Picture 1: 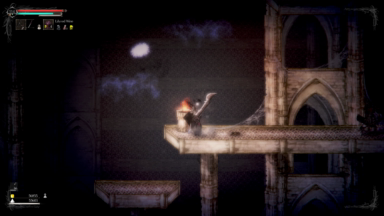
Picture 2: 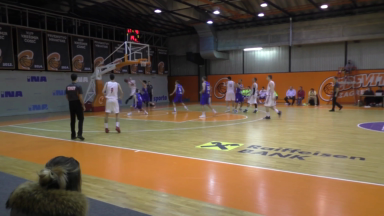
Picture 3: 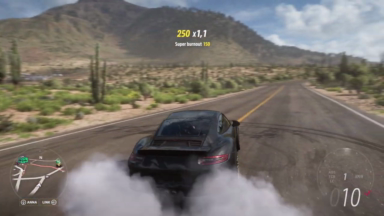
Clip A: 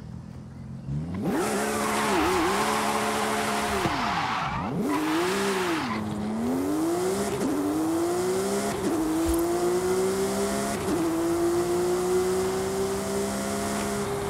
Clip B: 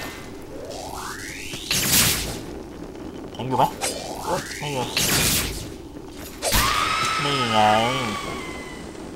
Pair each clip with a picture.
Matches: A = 3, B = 1